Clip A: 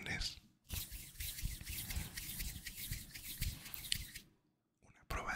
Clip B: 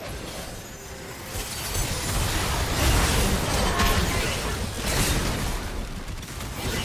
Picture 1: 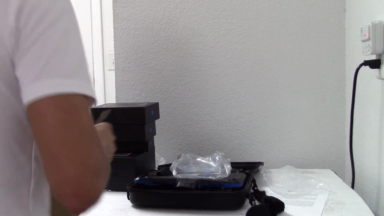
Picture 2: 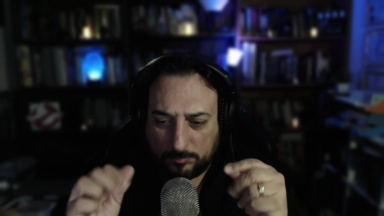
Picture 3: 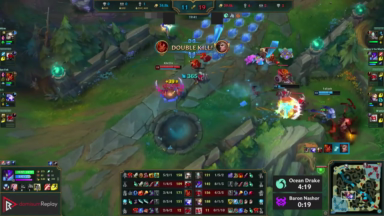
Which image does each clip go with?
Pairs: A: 2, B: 3